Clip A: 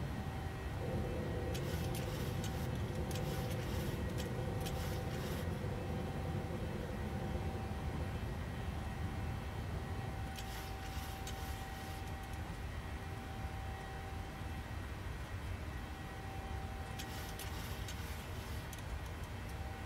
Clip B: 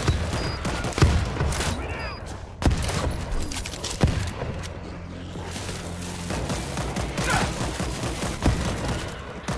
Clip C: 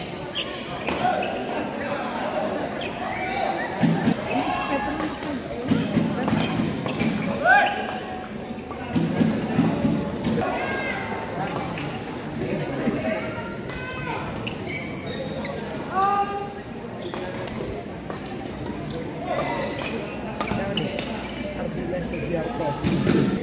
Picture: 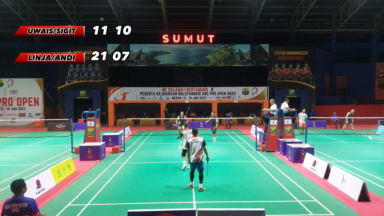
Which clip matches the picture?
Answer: C